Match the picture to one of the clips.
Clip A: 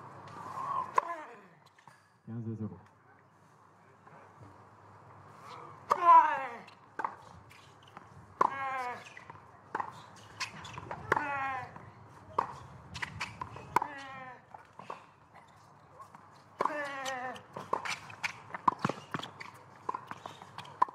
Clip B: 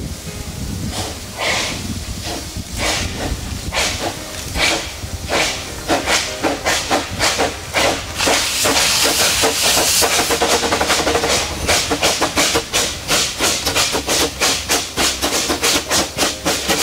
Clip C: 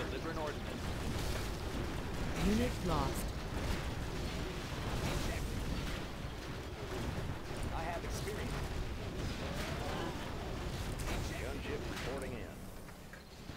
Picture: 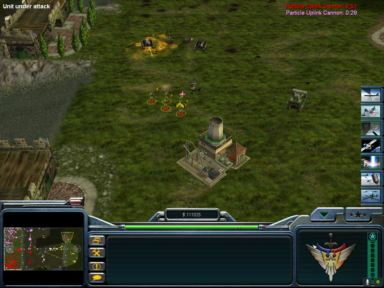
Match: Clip C